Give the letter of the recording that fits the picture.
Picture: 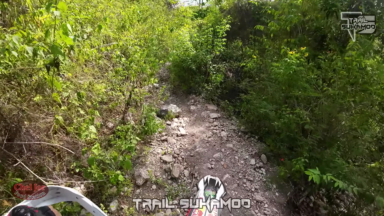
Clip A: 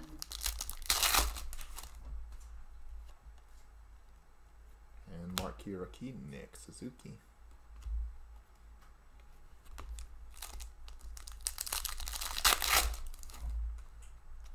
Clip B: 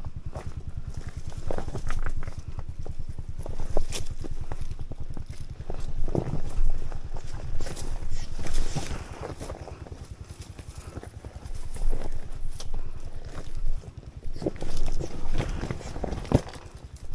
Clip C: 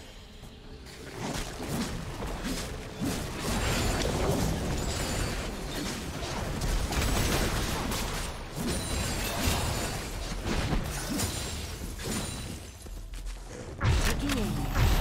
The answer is B